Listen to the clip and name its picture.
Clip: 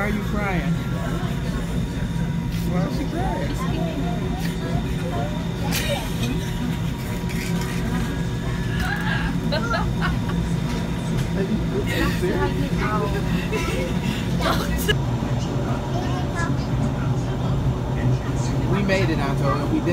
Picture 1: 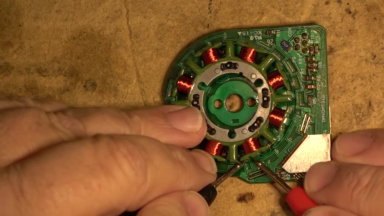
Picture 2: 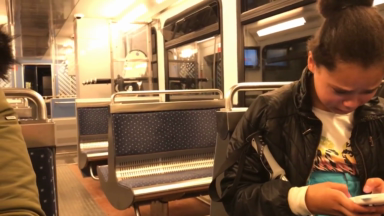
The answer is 2